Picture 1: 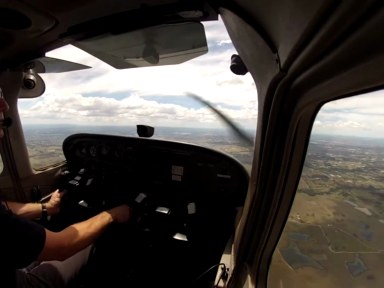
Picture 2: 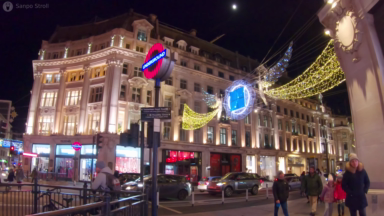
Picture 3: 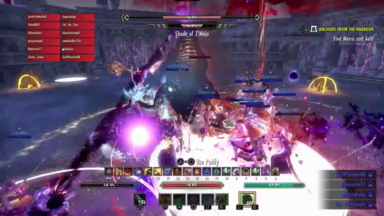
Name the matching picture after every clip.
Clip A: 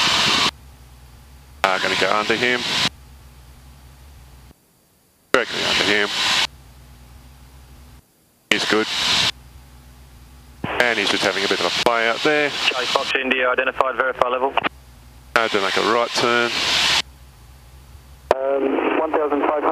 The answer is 1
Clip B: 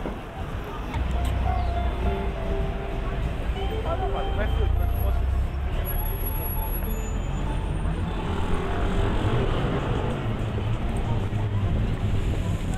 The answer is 2